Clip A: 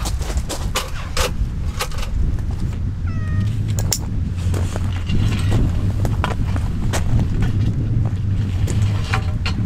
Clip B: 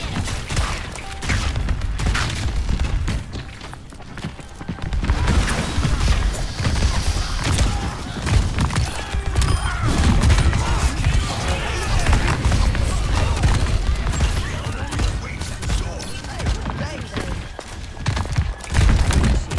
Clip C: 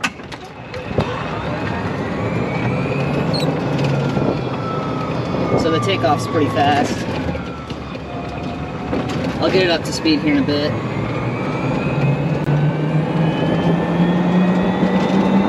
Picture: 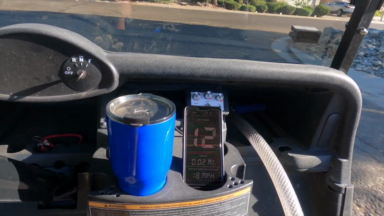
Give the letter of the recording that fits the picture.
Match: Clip C